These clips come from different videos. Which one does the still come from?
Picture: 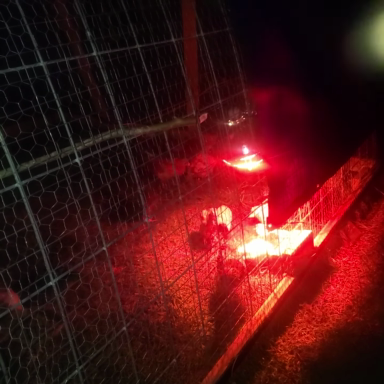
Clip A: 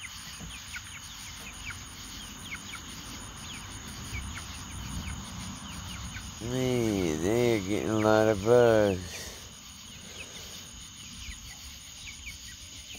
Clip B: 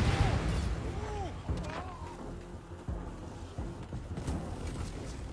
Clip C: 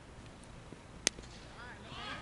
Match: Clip A